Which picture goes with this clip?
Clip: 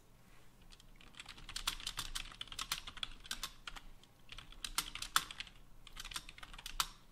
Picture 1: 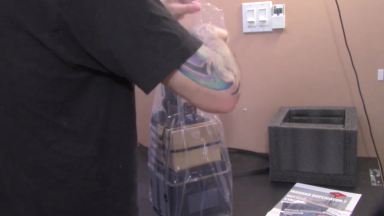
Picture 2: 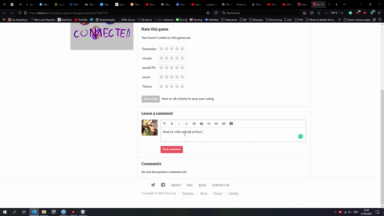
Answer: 2